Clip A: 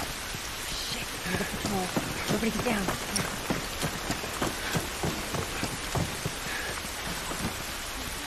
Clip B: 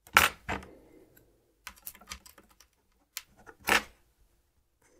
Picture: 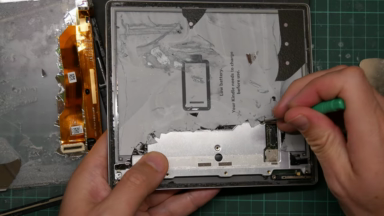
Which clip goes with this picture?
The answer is B